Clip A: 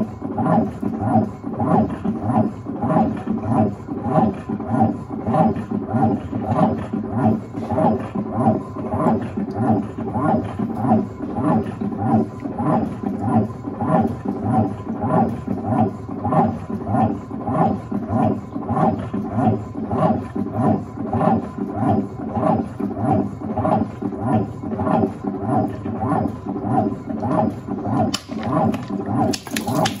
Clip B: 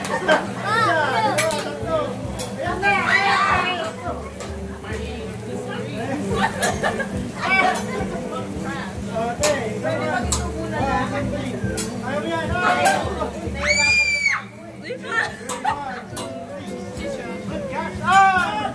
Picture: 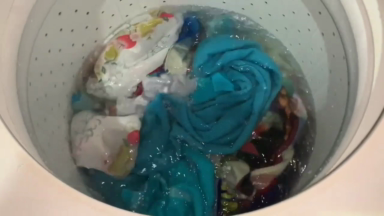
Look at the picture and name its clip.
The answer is A